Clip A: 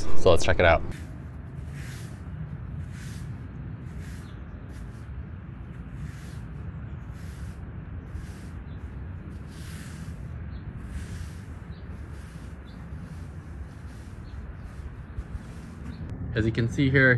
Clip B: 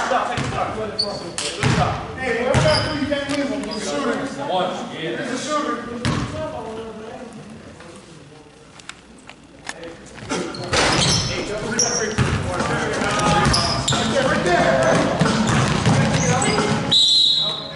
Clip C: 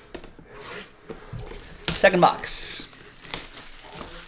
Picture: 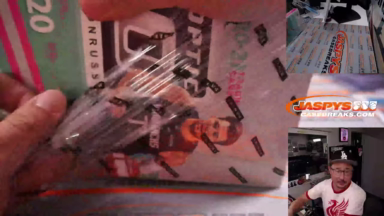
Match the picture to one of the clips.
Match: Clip C